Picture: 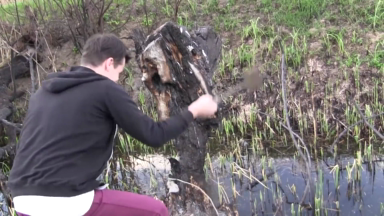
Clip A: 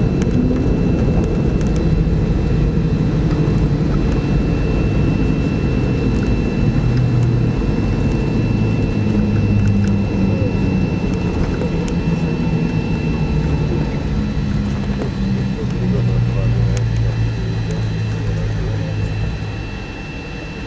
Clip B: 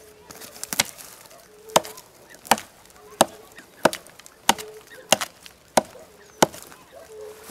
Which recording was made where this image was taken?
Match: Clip B